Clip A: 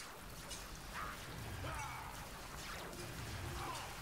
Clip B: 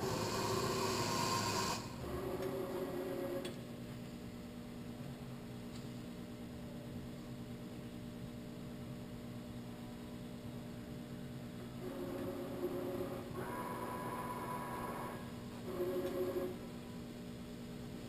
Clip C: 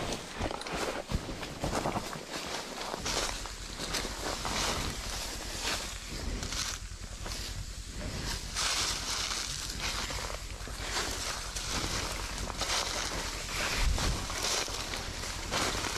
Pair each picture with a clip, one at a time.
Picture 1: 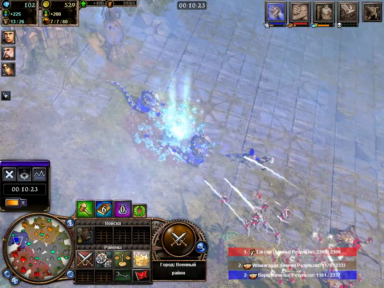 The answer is A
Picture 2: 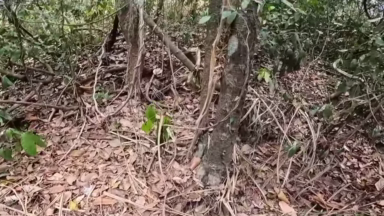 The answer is C